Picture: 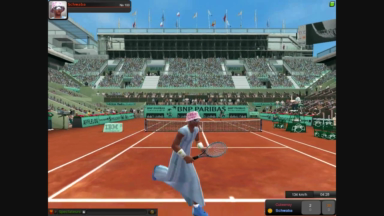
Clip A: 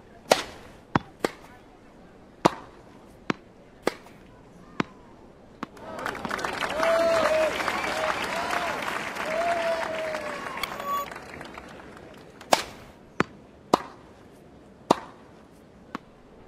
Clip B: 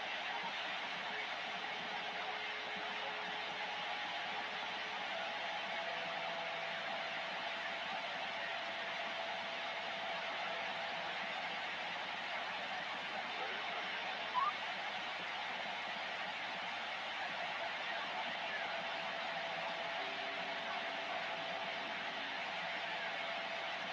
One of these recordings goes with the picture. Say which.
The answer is A